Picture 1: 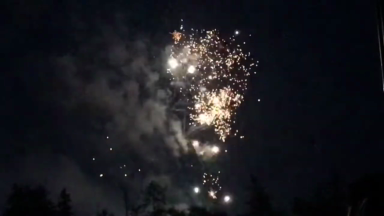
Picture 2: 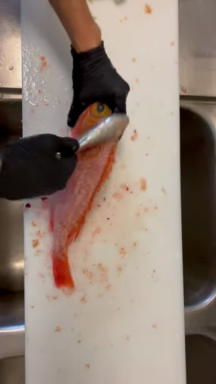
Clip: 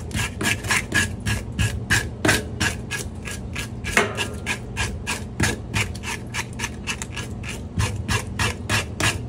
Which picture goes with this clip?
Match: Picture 2